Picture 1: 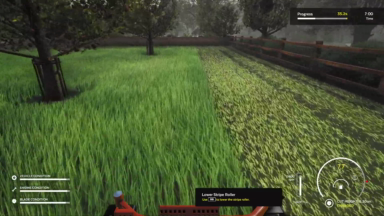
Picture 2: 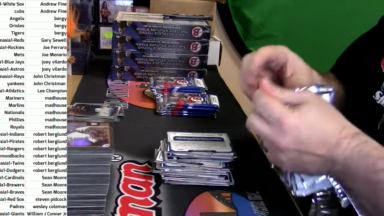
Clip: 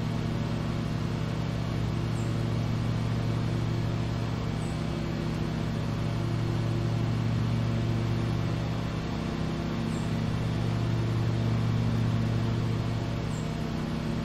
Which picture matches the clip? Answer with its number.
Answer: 1